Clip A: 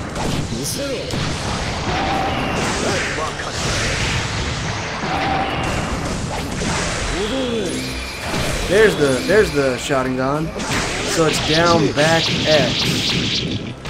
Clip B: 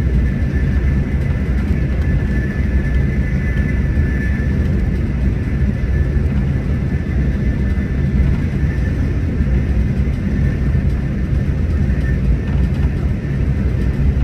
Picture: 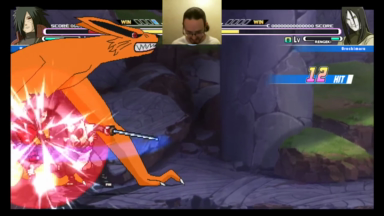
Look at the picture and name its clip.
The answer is A